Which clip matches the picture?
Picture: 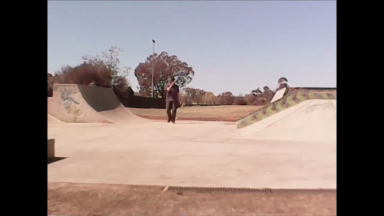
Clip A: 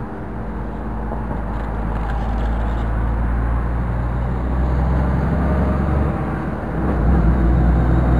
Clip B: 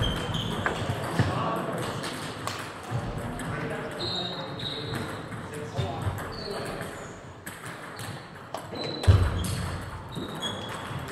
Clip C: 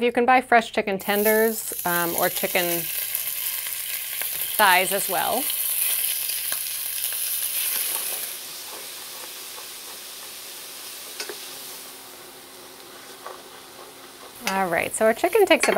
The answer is A